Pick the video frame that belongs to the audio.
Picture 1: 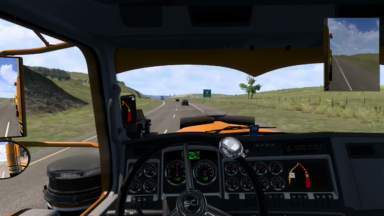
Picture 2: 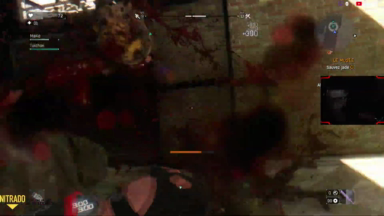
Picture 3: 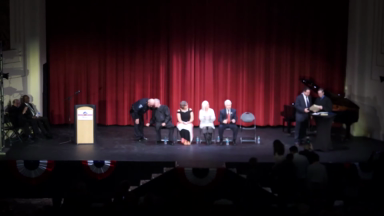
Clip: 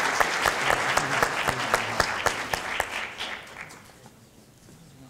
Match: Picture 3